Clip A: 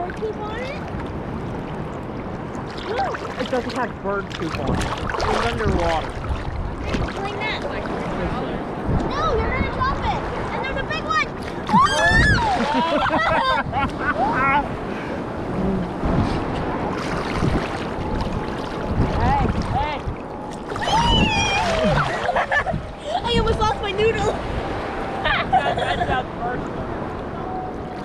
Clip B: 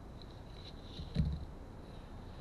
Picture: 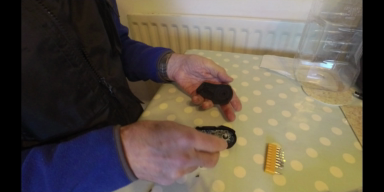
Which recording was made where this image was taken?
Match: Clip B